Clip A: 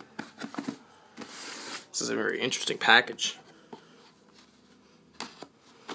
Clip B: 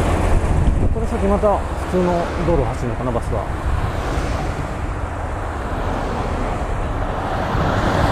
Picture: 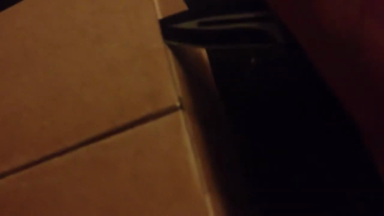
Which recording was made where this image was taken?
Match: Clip A